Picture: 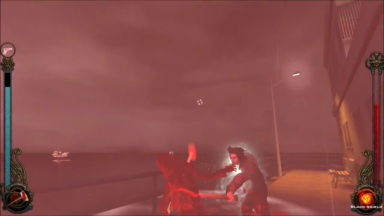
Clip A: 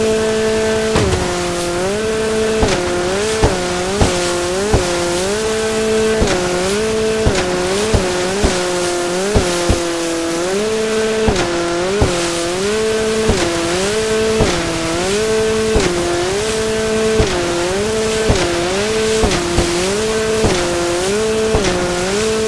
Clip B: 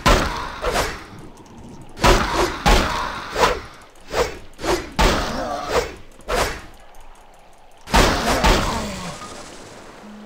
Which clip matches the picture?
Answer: B